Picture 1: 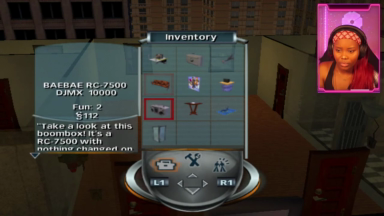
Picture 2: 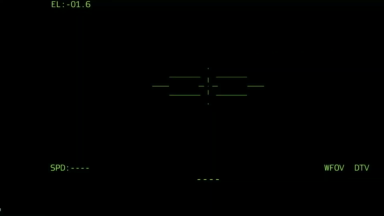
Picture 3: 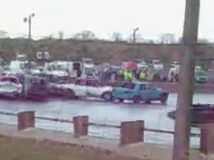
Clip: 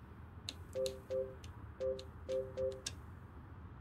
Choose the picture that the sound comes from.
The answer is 1